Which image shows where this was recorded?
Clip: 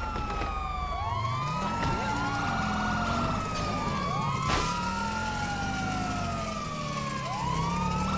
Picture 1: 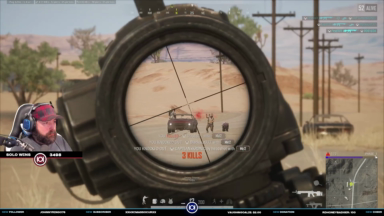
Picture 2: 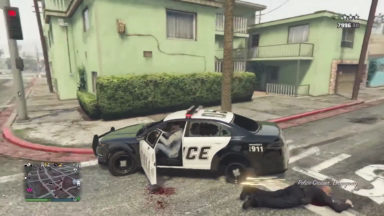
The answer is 2